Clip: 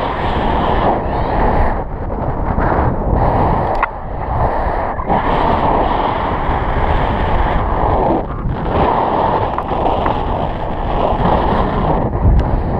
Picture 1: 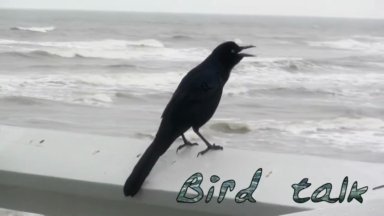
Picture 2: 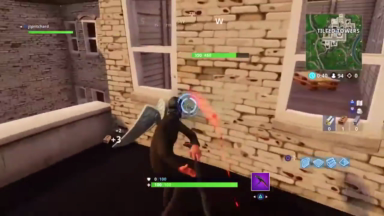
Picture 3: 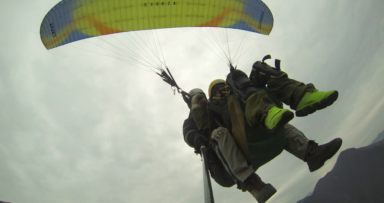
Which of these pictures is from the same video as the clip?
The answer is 3